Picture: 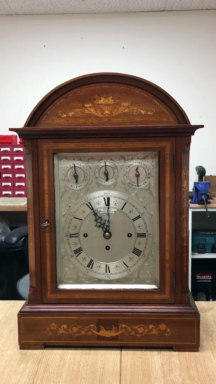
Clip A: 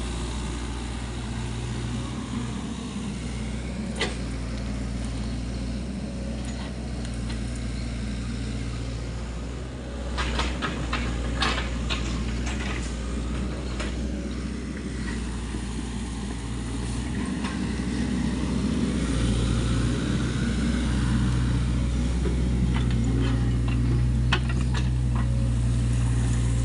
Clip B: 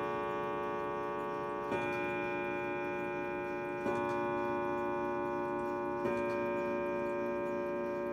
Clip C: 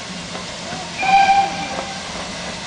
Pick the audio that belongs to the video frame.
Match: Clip B